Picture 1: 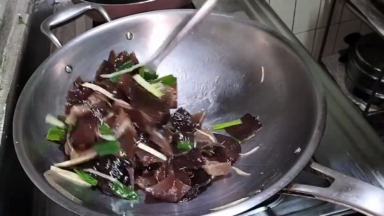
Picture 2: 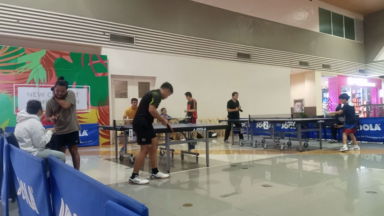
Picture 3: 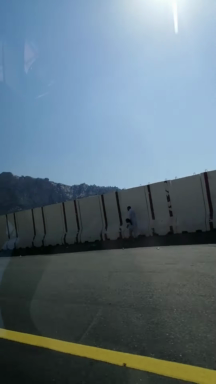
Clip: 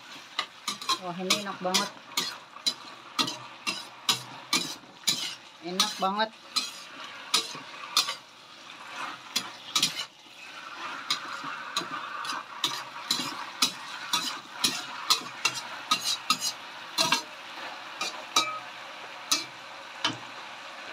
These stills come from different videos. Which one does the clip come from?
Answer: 1